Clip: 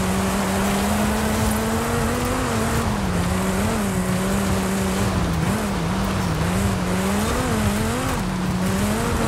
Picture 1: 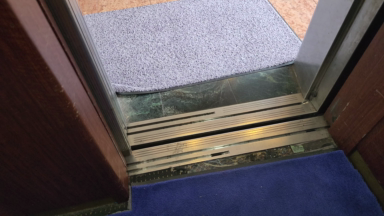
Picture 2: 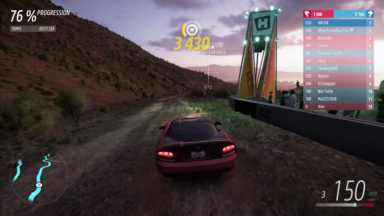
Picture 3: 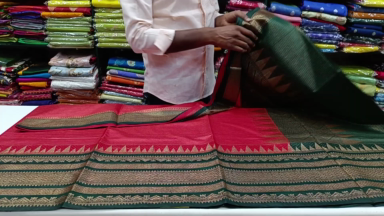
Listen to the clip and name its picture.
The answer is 2